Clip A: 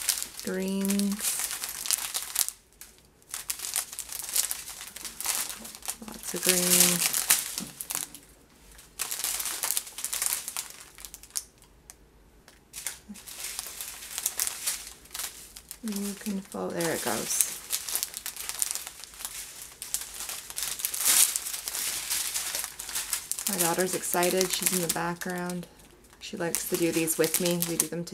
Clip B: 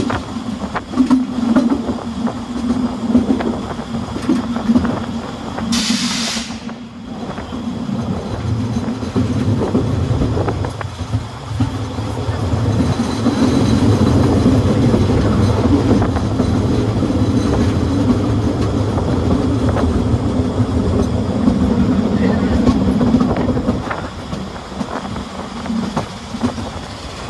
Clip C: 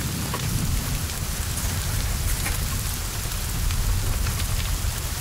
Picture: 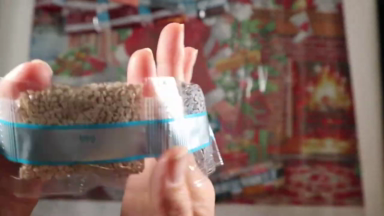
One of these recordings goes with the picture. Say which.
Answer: A